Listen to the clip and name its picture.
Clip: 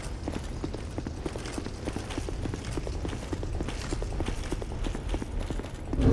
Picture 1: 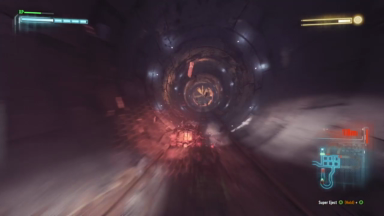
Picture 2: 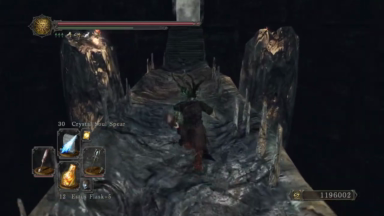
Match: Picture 2